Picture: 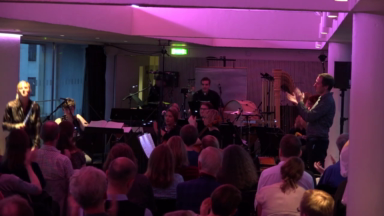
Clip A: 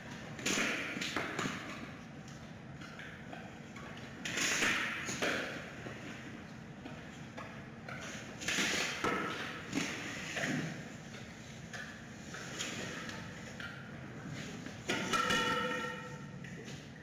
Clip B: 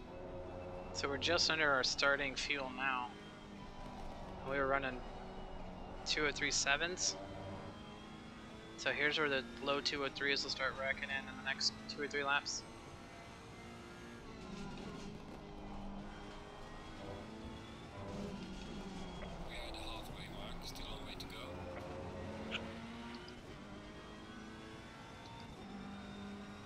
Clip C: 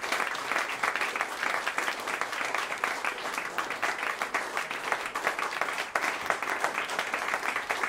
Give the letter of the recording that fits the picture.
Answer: C